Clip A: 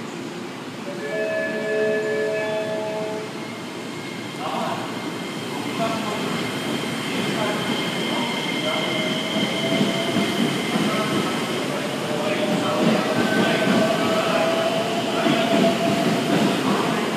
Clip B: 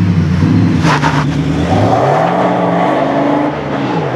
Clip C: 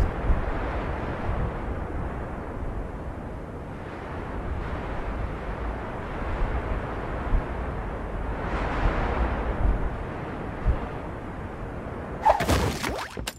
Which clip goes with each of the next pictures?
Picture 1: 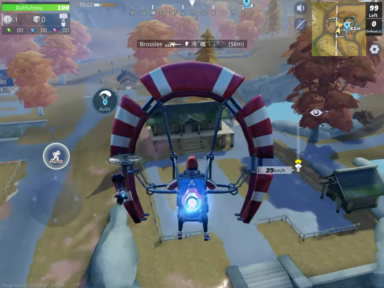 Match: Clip C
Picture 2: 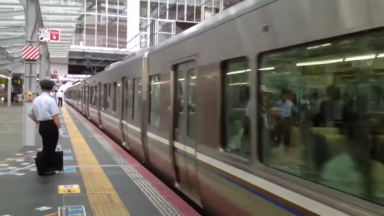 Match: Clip A